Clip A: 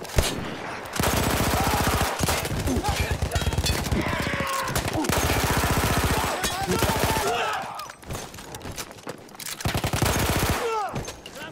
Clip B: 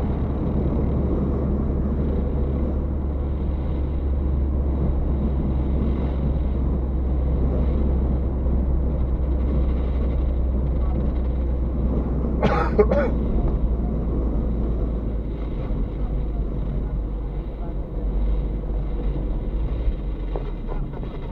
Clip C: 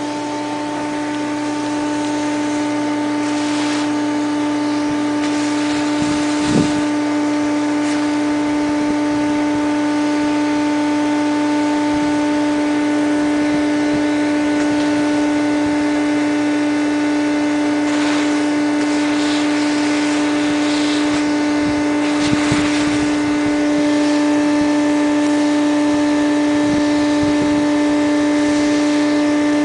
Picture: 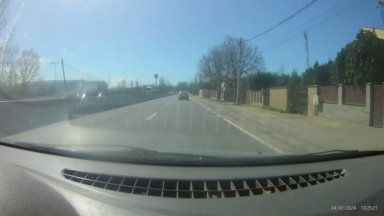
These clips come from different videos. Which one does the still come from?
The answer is B